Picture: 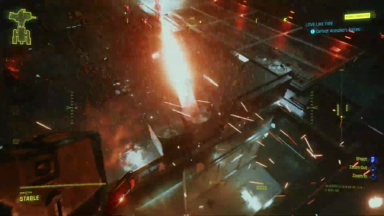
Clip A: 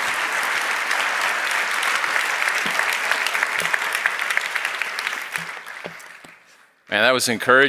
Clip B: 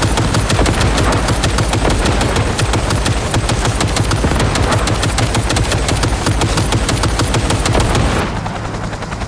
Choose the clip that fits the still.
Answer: B